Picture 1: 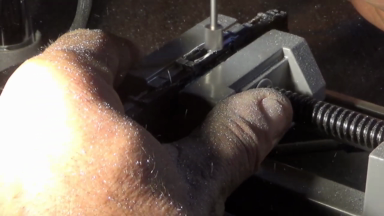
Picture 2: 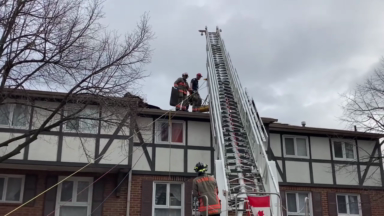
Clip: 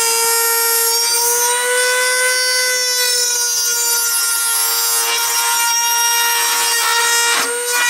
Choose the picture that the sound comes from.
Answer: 1